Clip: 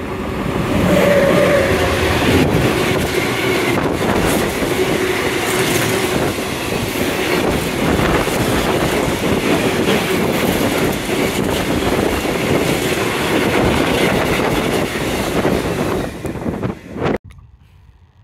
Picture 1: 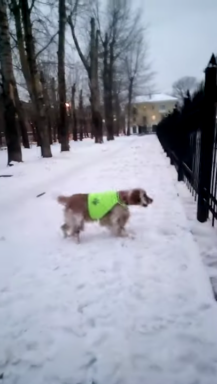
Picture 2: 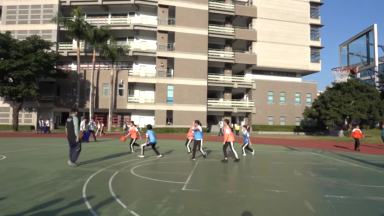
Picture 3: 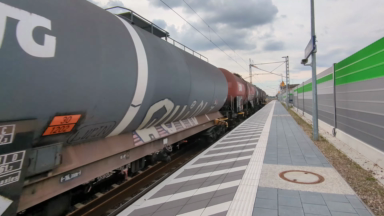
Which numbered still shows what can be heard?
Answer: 3